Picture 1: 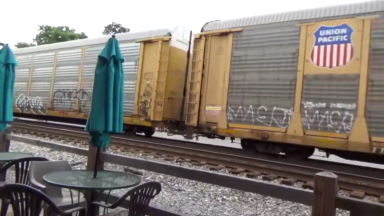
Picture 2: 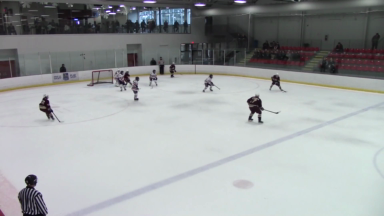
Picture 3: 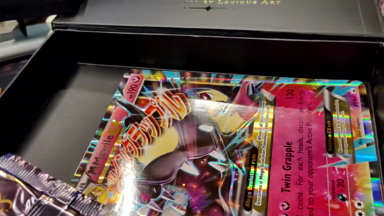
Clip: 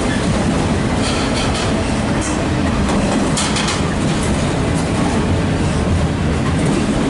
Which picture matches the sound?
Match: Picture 1